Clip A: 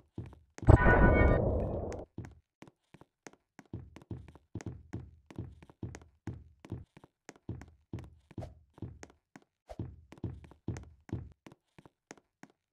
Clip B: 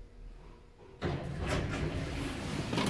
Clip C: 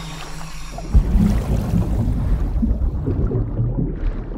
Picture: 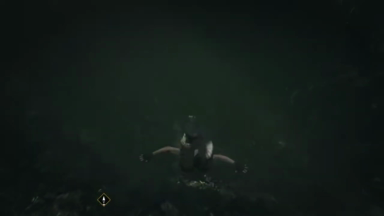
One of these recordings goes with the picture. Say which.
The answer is C